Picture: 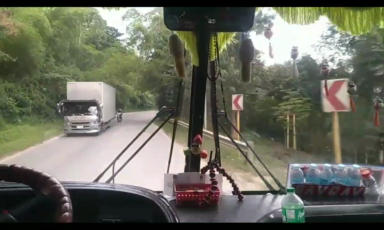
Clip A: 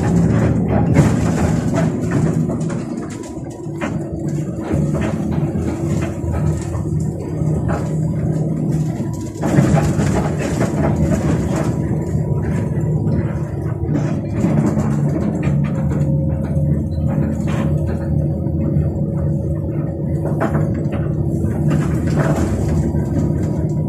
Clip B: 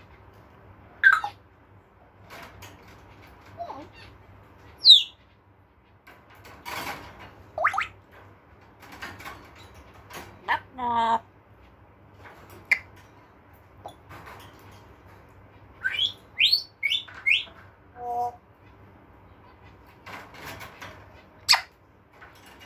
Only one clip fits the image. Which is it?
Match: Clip A